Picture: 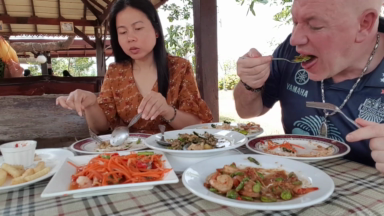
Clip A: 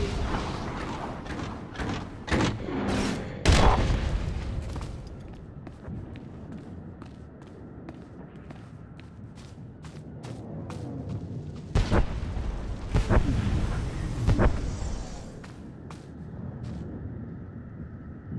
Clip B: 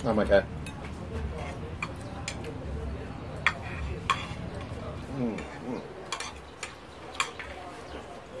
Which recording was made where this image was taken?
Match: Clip B